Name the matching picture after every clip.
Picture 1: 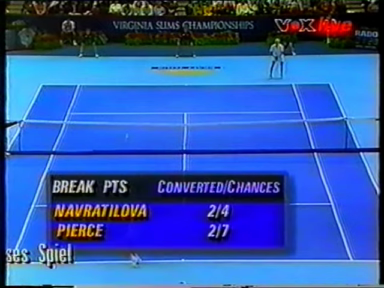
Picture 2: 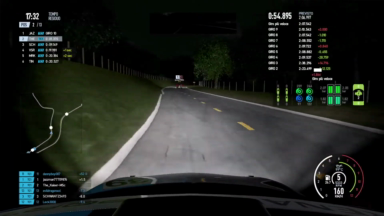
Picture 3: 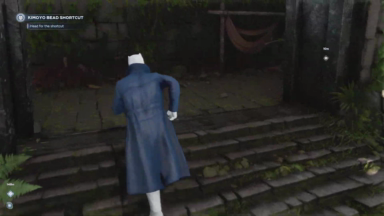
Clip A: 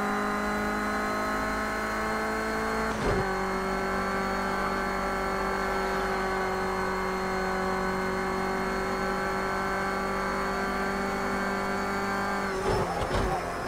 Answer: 2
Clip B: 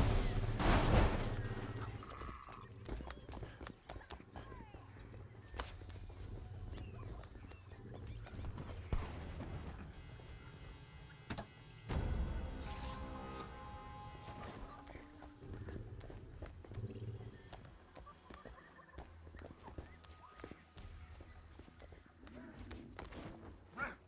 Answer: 3